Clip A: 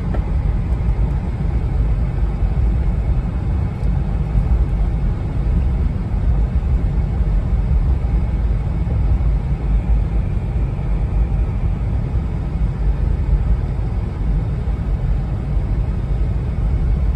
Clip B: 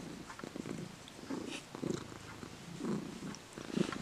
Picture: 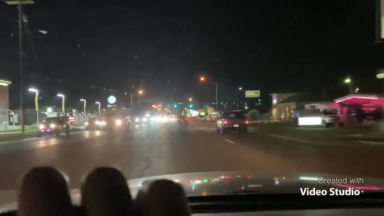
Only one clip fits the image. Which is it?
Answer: A